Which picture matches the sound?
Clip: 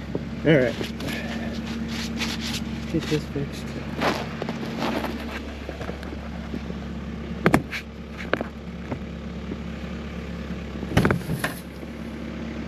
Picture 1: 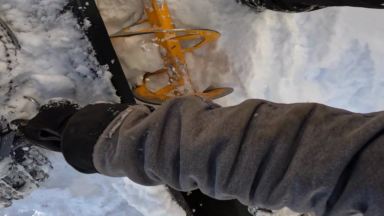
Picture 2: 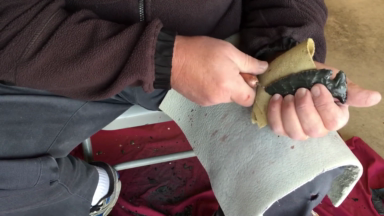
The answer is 1